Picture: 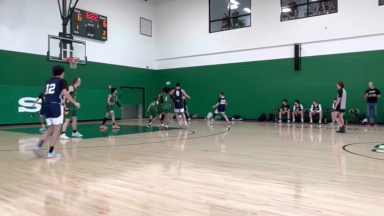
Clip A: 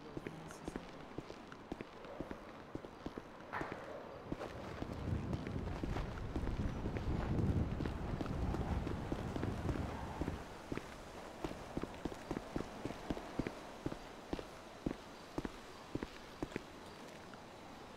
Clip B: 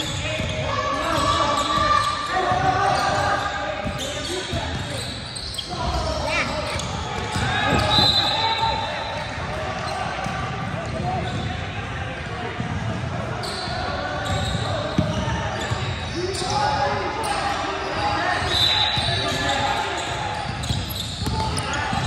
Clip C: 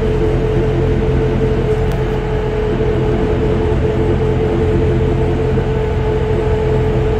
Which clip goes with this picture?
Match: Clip B